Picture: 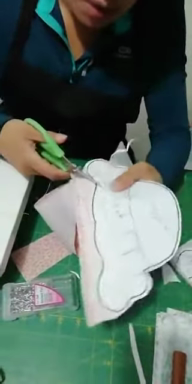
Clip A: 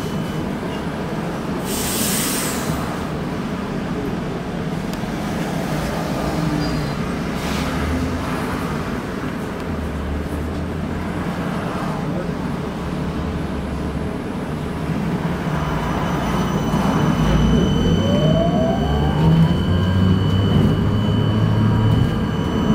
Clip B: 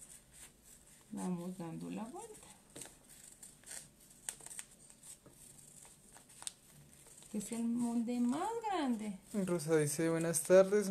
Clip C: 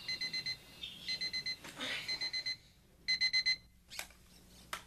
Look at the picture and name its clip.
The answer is B